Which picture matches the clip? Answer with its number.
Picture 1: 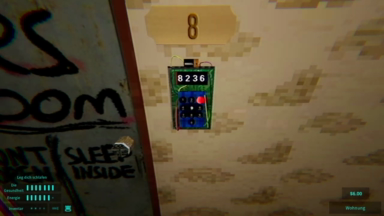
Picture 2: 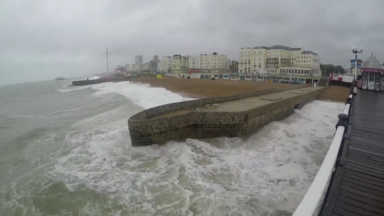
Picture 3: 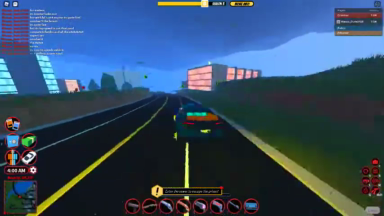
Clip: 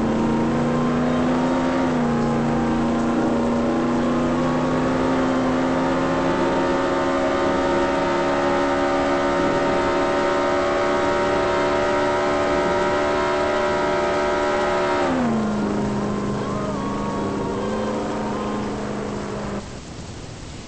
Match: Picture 3